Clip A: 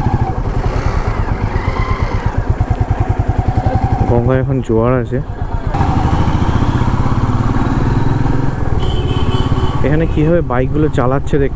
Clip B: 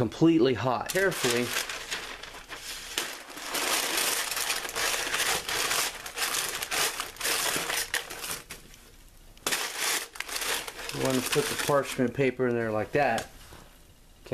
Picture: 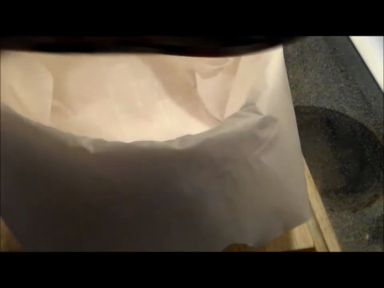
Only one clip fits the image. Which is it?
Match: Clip B